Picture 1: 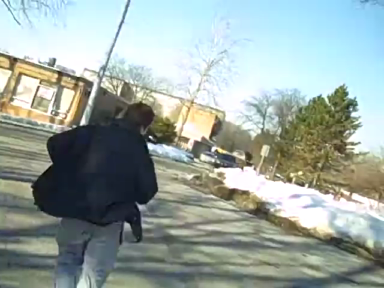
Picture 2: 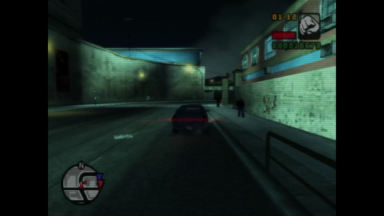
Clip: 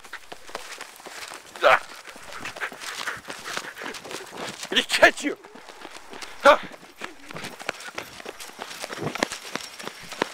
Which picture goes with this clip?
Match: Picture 1